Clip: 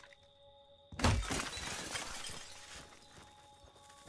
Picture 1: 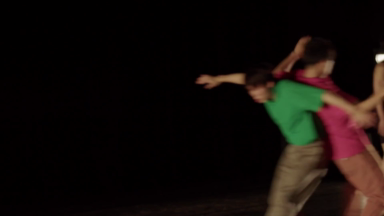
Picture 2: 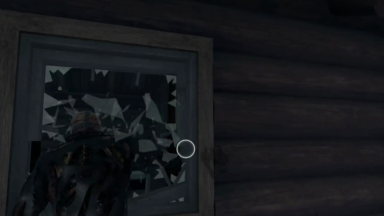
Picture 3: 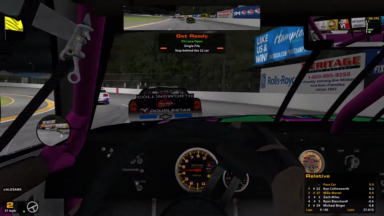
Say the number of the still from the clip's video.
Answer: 2